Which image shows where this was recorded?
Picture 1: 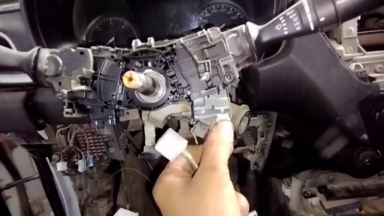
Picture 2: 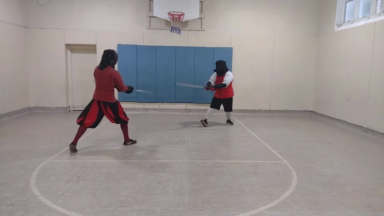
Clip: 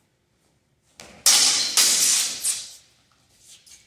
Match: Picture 2